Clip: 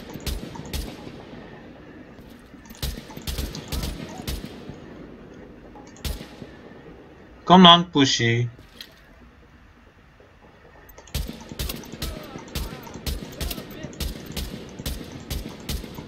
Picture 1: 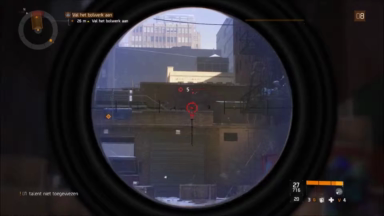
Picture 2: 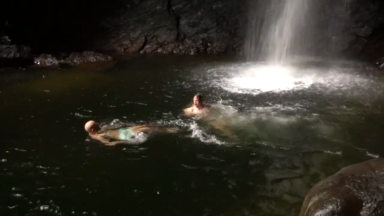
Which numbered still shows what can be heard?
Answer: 1